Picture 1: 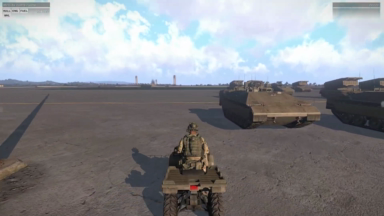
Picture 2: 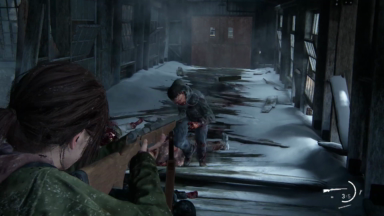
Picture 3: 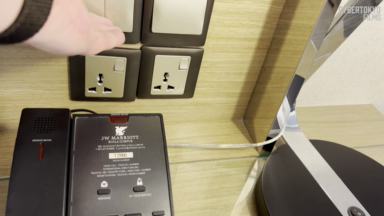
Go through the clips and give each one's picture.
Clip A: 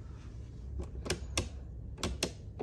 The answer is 3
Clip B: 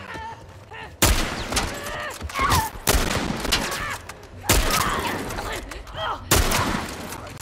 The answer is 2